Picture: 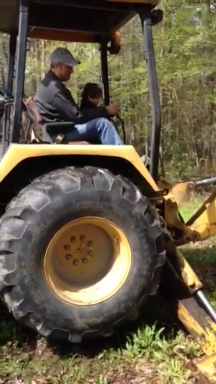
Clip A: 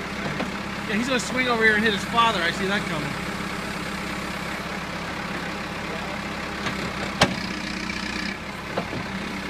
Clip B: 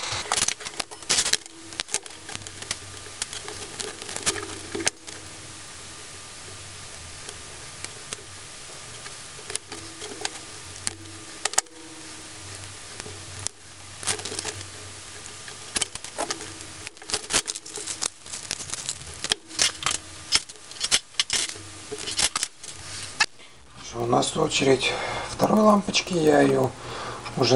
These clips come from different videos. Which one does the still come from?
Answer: A